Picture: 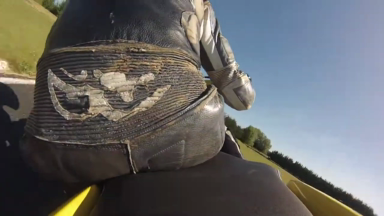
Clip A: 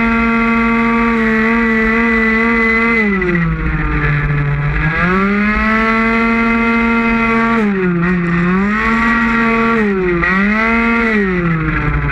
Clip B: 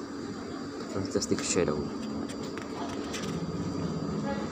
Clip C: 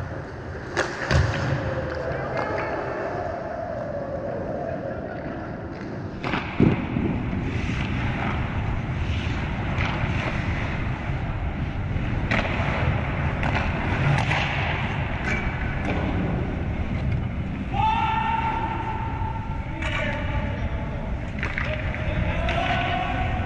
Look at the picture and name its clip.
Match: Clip A